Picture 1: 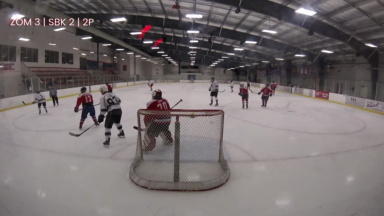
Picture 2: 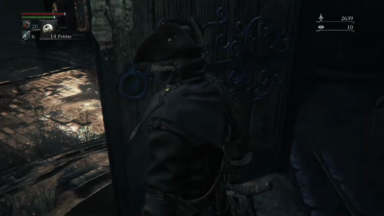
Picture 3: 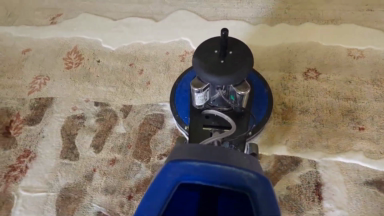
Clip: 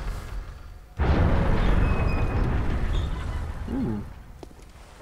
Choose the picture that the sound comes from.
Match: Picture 2